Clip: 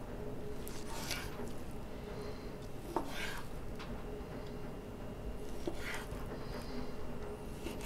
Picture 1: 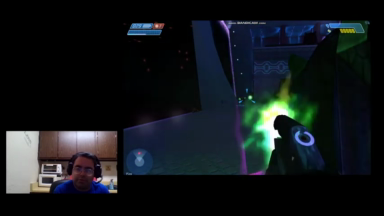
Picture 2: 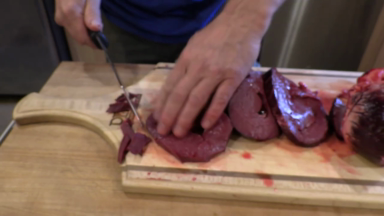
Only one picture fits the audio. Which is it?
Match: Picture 2